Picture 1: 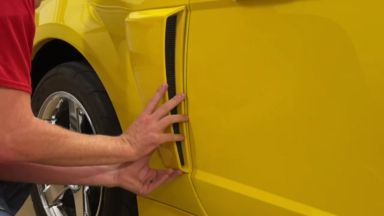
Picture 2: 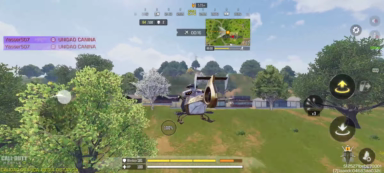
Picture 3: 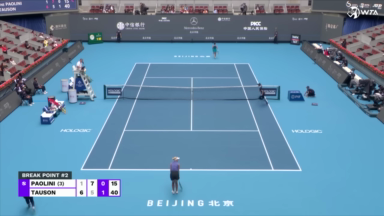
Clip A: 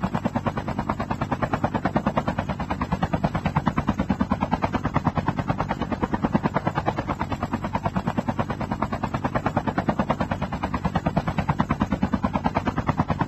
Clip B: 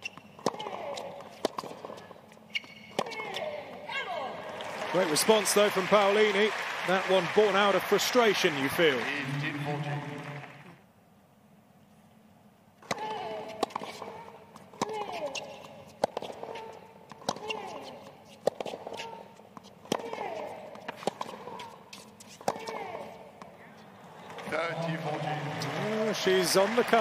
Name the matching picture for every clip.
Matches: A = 2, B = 3